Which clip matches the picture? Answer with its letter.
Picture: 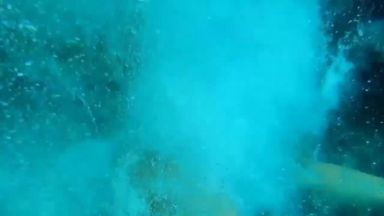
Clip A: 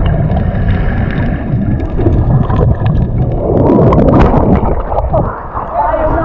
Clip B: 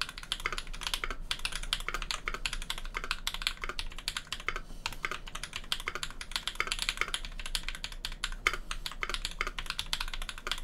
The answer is A